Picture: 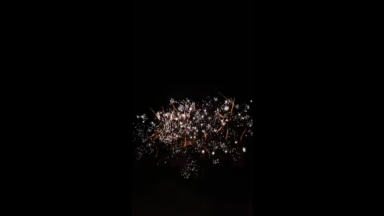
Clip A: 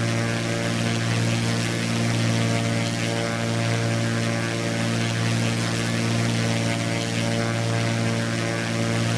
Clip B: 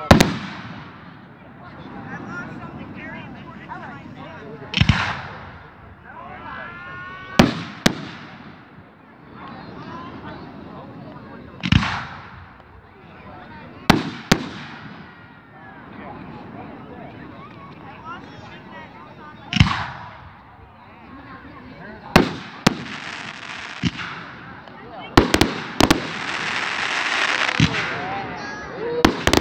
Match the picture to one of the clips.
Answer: B